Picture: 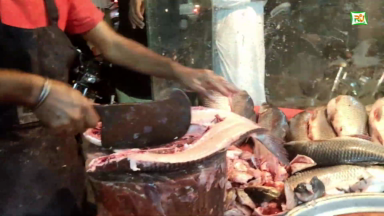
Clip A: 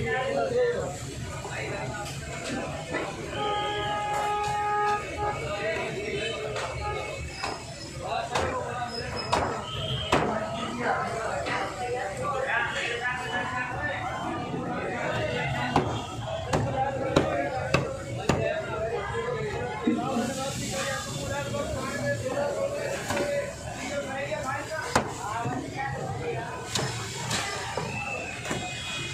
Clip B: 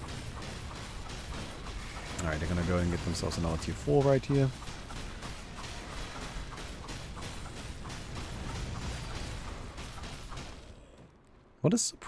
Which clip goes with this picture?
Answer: A